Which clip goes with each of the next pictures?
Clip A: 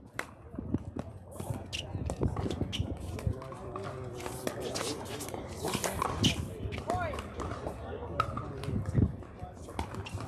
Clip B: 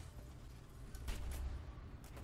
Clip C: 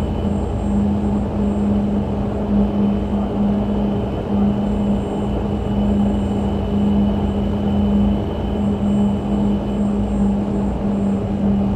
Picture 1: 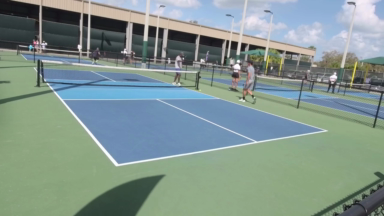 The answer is A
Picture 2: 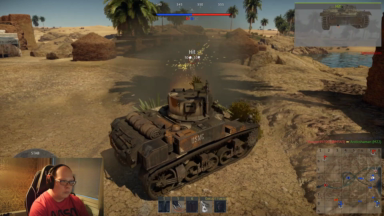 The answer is B